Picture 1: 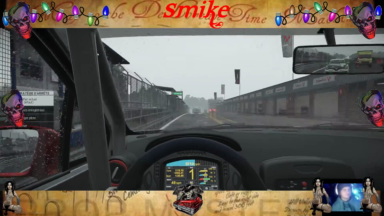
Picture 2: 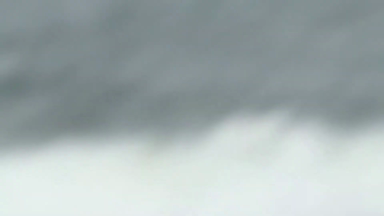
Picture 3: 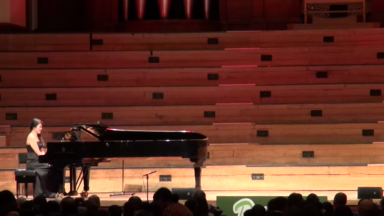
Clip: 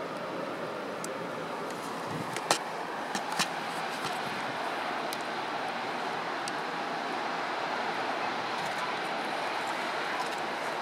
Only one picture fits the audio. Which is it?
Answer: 2